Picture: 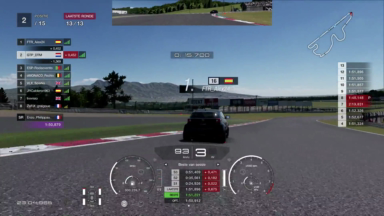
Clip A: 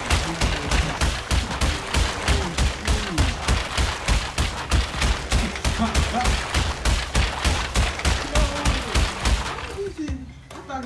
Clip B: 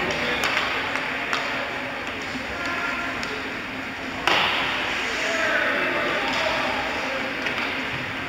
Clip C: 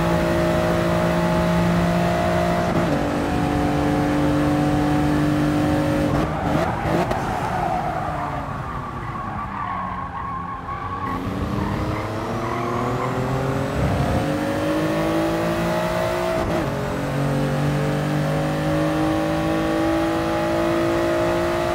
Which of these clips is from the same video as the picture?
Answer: C